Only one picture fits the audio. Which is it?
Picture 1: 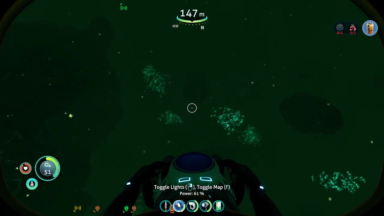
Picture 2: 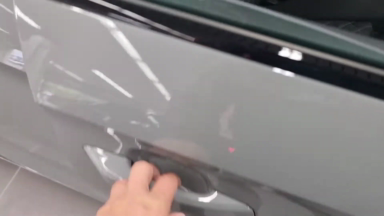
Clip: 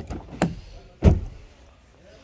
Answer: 2